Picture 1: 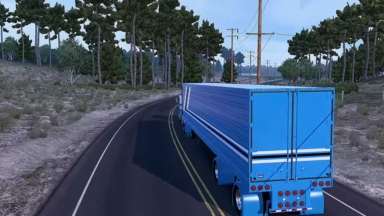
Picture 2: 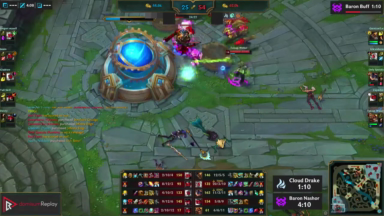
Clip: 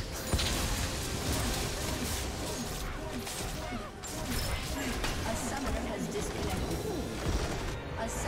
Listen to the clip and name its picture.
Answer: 2